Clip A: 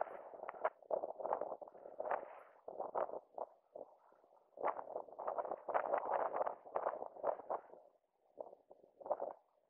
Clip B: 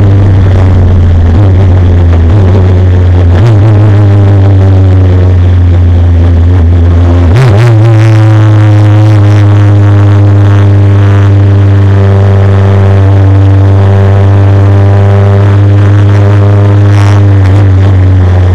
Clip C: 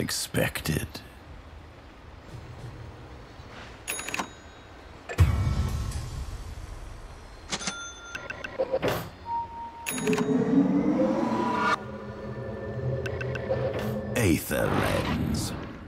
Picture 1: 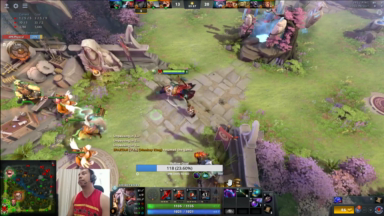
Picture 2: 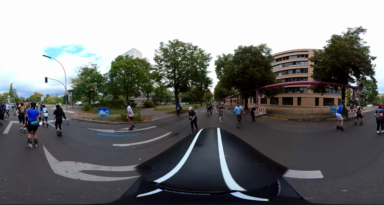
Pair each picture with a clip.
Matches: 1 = C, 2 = A